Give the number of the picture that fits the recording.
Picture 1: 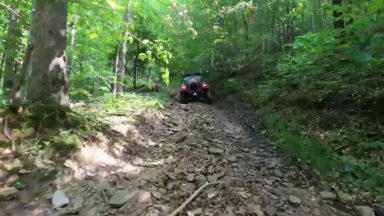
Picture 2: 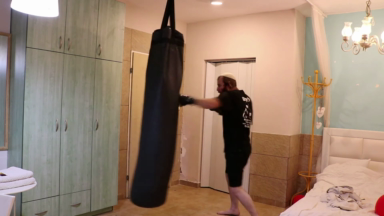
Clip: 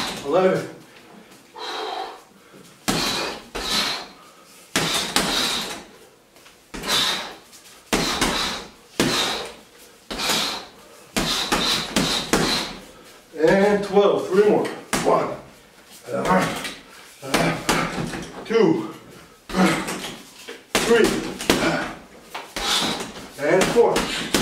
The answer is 2